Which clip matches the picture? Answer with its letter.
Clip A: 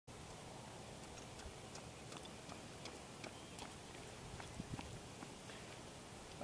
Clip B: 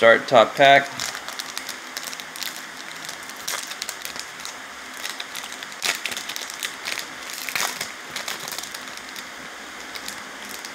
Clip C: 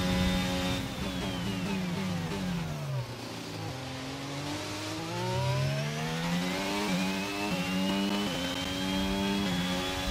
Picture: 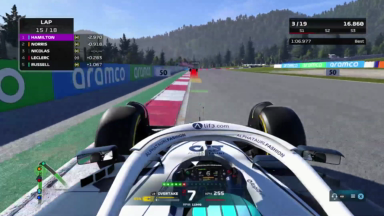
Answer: C